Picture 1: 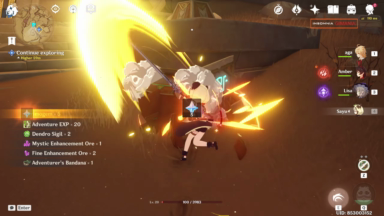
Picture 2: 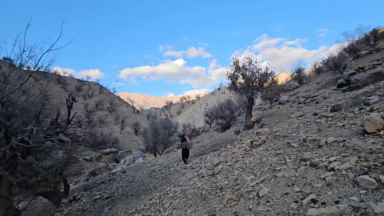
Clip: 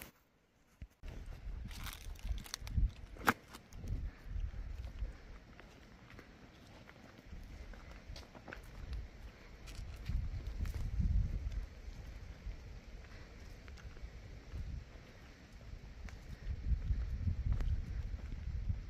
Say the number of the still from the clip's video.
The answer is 2